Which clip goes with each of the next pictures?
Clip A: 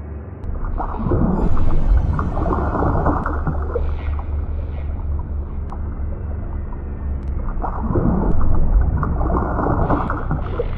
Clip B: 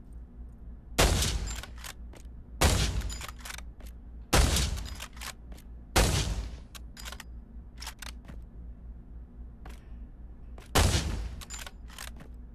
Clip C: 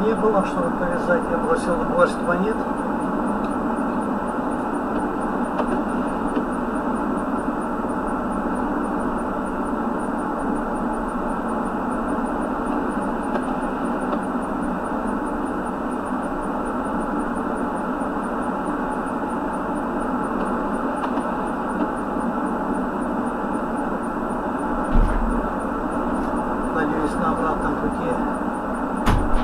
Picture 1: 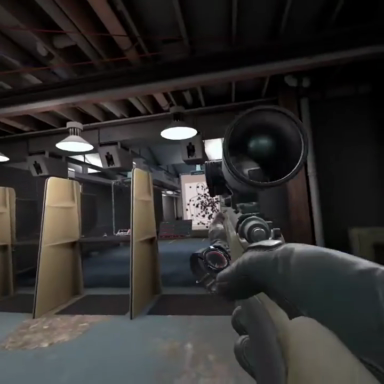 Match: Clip B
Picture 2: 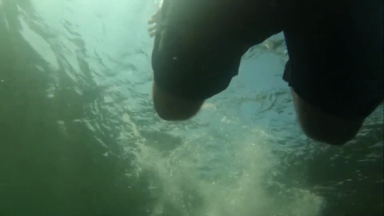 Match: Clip A